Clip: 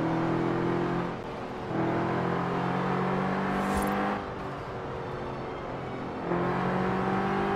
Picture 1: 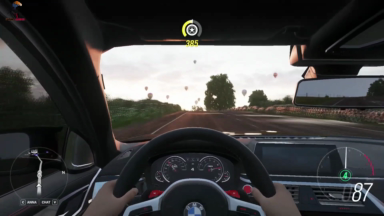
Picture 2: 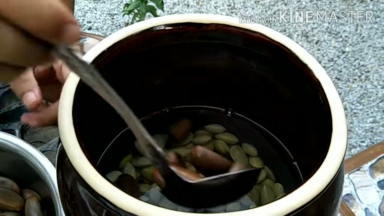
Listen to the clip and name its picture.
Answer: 1